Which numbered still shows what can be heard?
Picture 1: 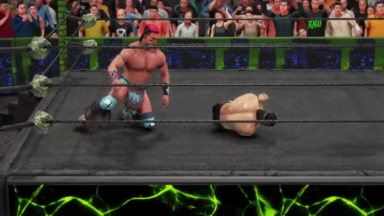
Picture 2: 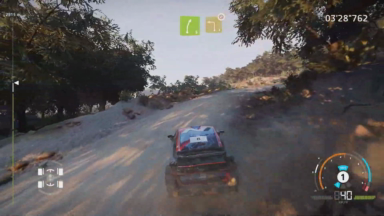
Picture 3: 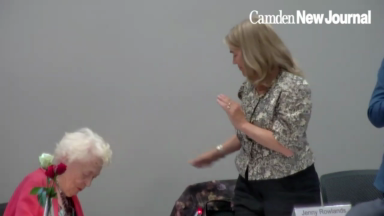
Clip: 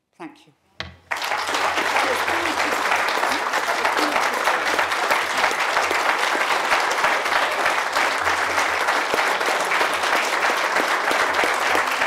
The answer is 3